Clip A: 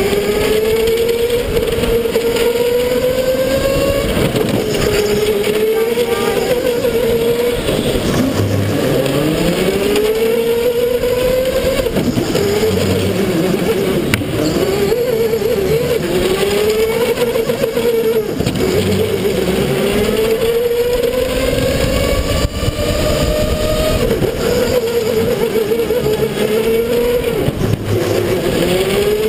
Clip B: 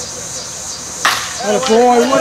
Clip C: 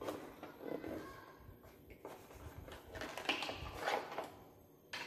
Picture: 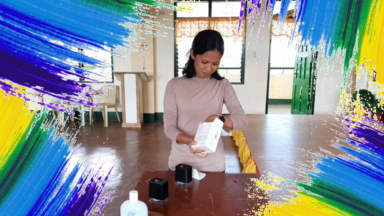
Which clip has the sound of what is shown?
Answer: C